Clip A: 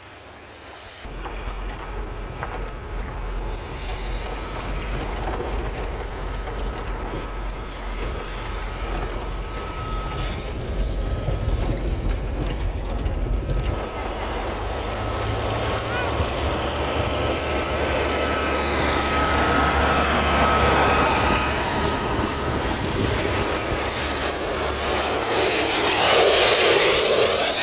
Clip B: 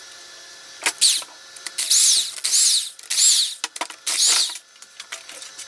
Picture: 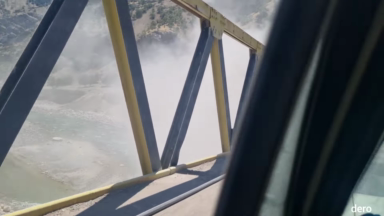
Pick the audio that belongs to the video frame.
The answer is A